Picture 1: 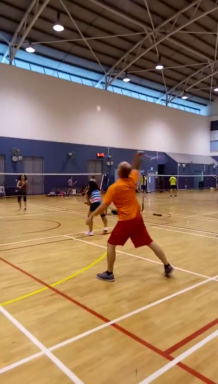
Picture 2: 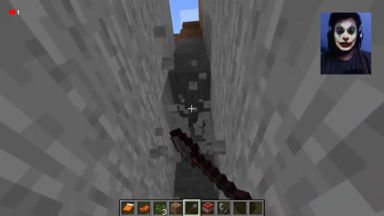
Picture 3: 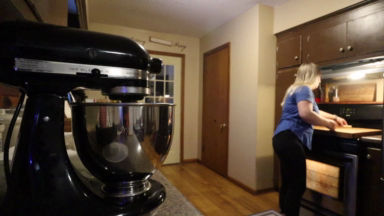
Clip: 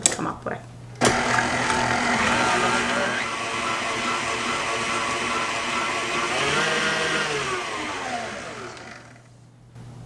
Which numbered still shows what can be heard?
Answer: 3